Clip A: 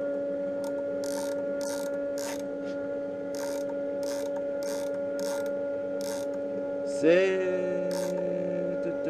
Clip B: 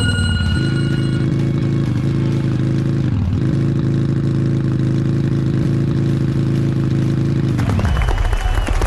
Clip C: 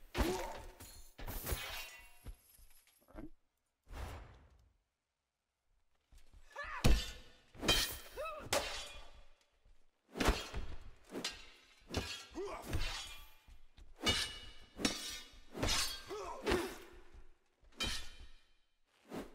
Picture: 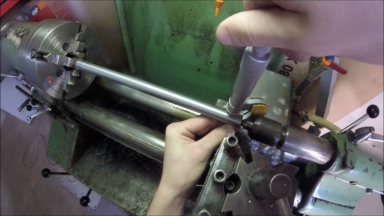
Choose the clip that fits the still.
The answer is A